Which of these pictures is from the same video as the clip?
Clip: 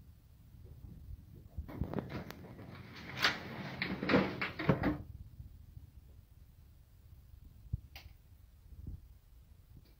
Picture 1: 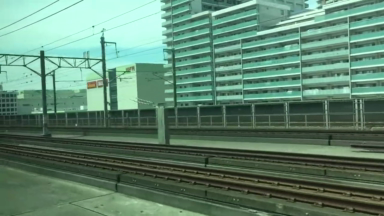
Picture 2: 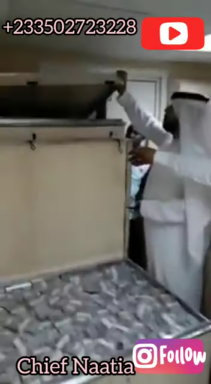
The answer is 2